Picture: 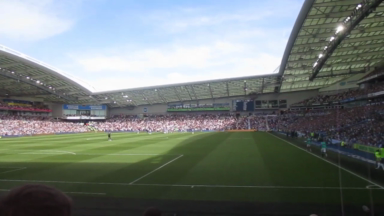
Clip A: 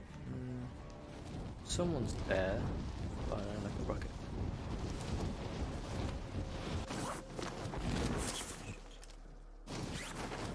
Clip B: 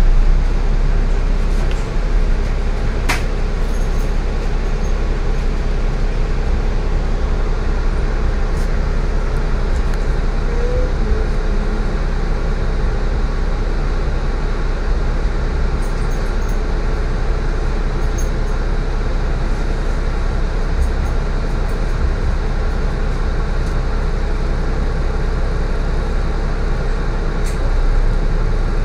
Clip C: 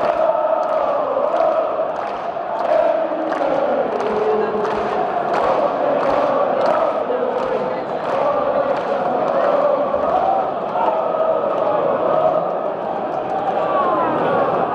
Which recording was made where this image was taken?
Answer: C